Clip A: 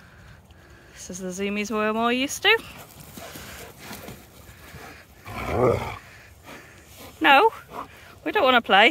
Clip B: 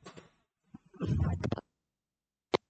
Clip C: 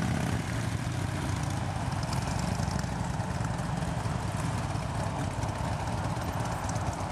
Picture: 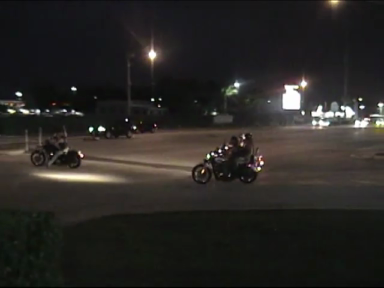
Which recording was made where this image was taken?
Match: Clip C